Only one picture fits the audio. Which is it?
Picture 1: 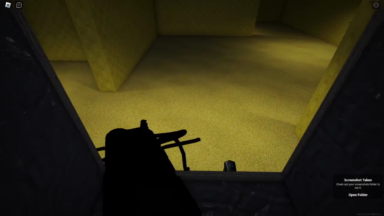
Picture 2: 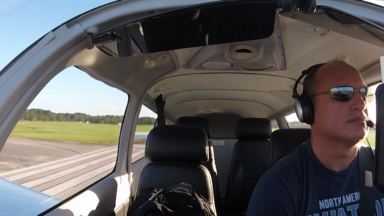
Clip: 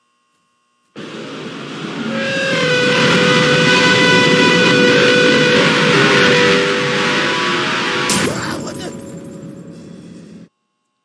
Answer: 1